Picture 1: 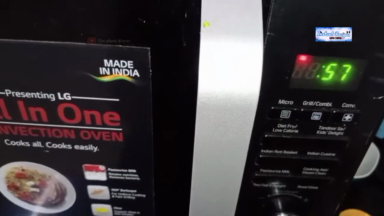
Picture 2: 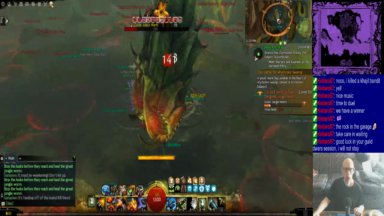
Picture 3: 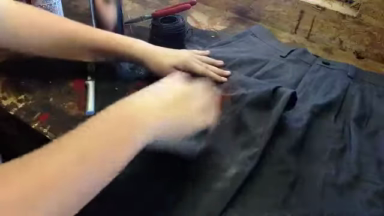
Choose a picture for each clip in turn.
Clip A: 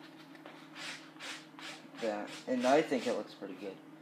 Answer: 3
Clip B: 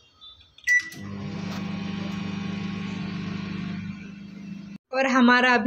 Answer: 1